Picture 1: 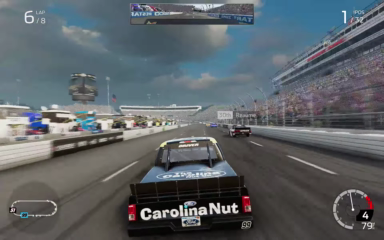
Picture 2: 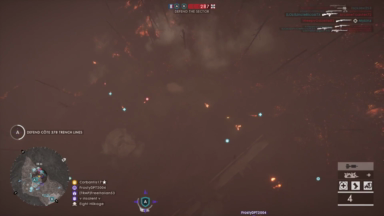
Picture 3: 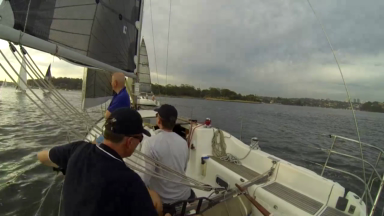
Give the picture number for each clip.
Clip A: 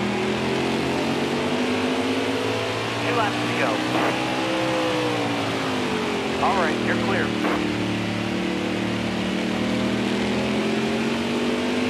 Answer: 1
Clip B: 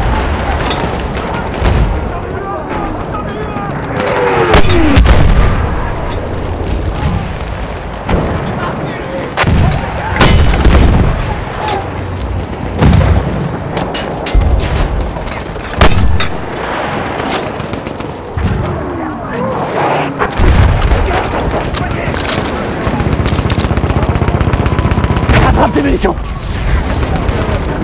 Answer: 2